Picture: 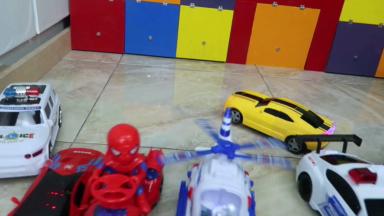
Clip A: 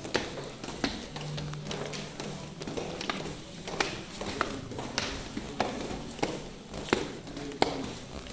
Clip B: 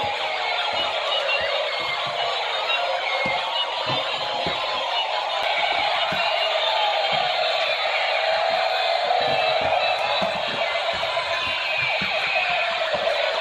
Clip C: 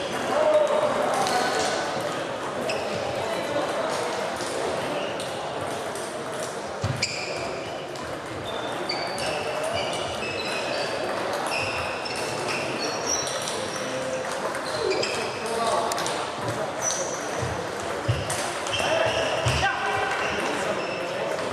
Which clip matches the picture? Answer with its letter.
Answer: B